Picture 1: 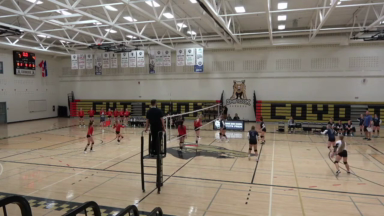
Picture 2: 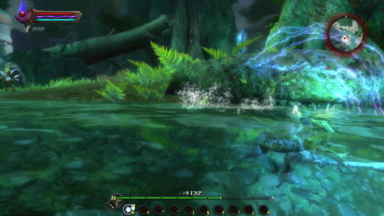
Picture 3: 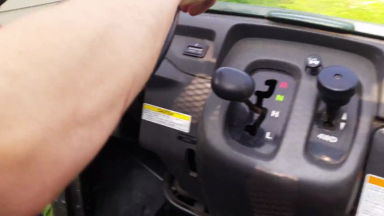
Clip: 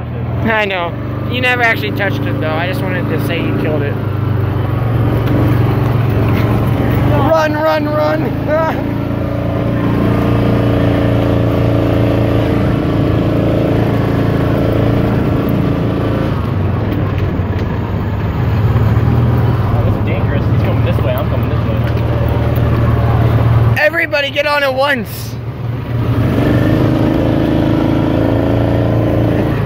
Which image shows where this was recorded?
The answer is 3